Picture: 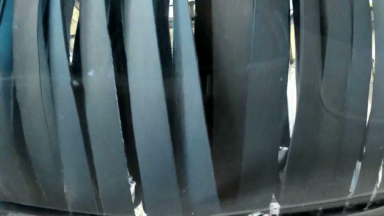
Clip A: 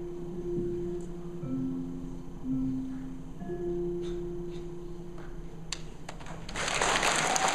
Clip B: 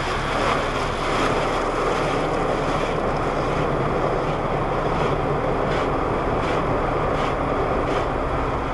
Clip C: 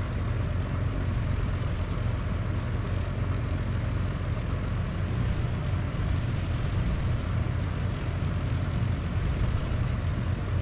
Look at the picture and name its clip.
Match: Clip B